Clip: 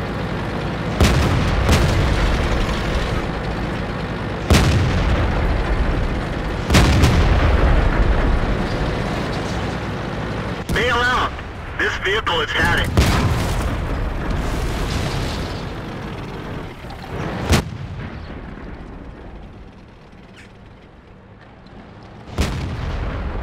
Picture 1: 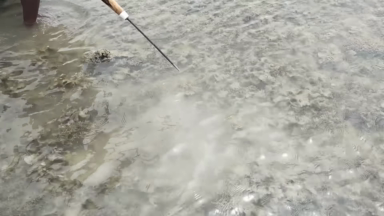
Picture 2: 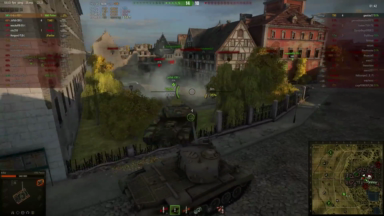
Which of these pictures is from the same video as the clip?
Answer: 2